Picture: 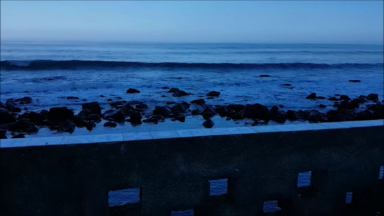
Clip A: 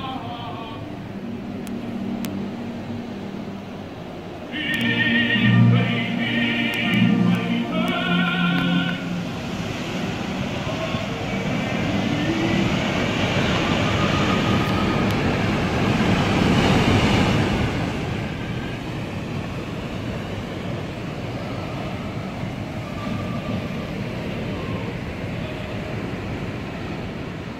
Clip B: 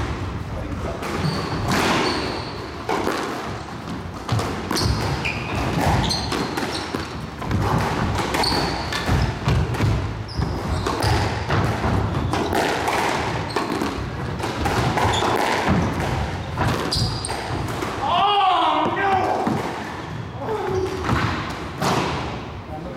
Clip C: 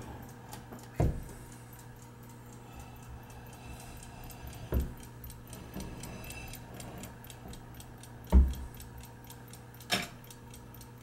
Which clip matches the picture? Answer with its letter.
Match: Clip A